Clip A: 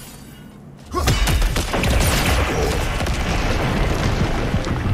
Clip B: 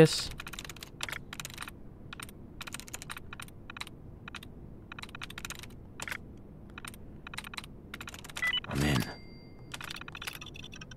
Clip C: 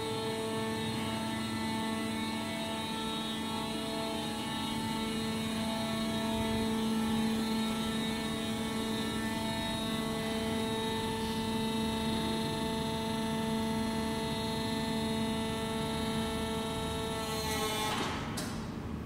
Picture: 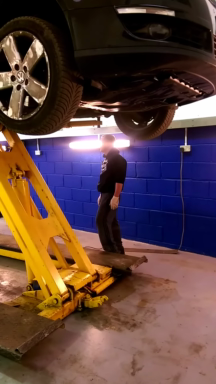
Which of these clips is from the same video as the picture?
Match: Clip C